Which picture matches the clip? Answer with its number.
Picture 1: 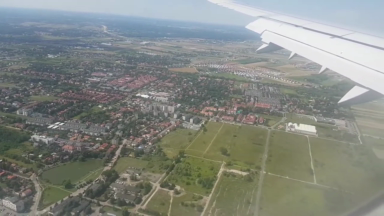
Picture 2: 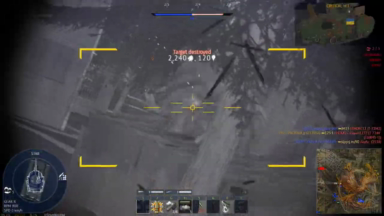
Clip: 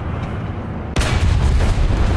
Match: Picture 2